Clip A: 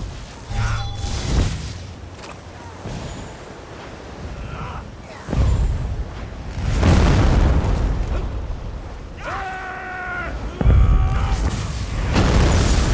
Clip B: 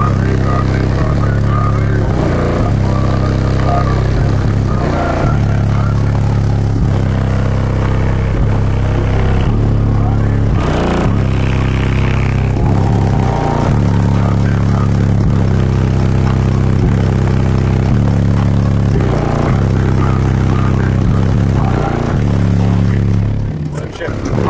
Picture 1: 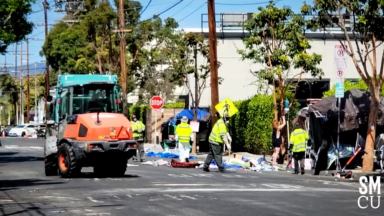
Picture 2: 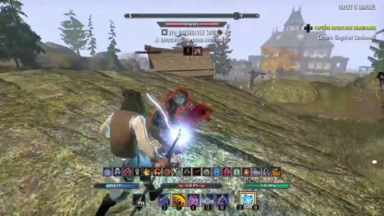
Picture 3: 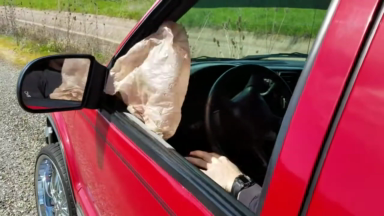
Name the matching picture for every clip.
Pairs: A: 2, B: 3